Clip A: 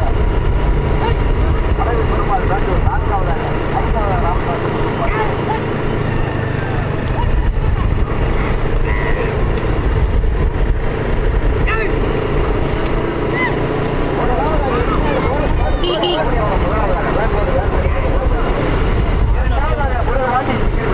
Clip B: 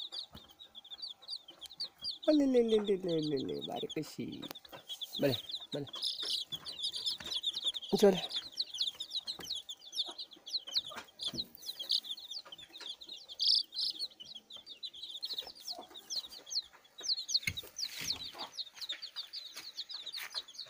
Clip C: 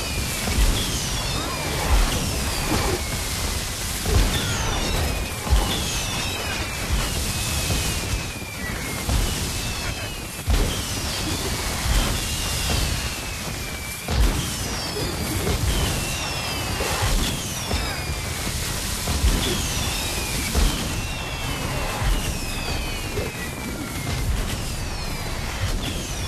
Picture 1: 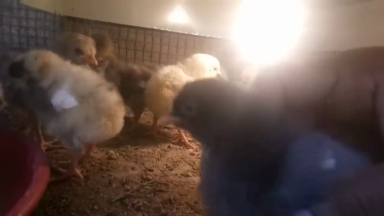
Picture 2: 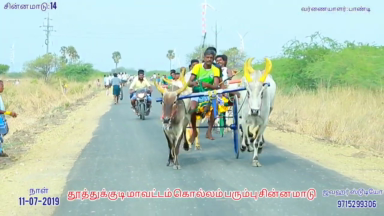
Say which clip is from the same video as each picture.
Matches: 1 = B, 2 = A